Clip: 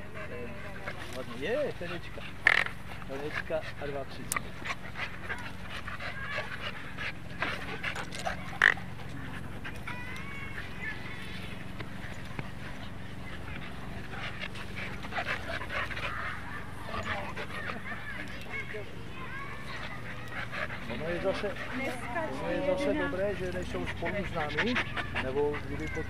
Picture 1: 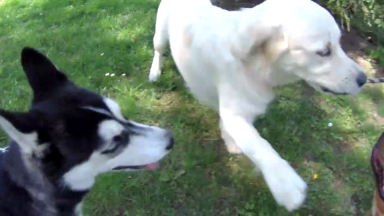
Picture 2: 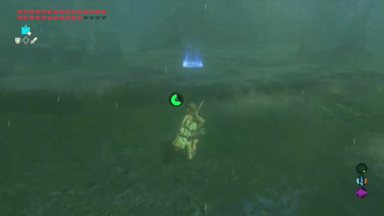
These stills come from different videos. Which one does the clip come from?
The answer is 1